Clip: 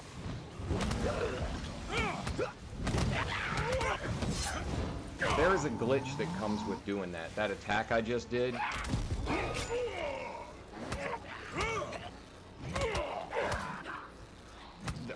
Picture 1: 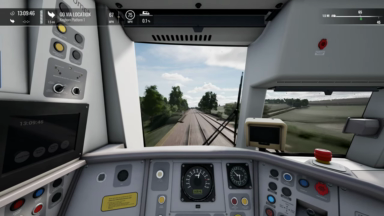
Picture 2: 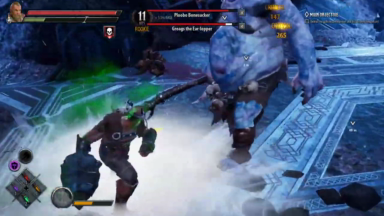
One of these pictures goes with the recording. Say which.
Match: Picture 2